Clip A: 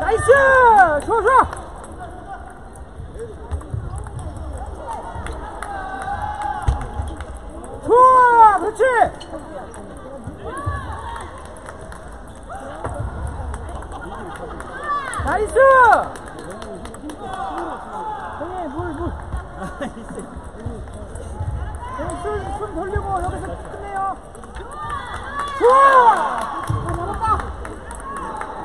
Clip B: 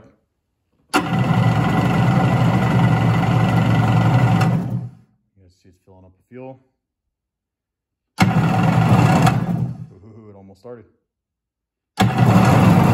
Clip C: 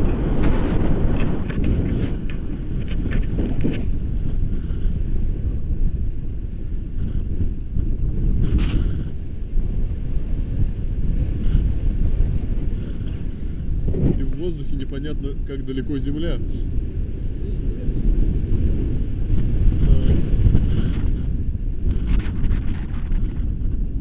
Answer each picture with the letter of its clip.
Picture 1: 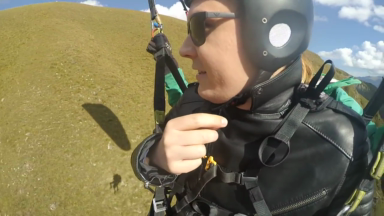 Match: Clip C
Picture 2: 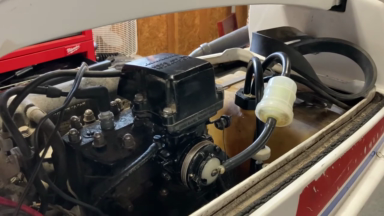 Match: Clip B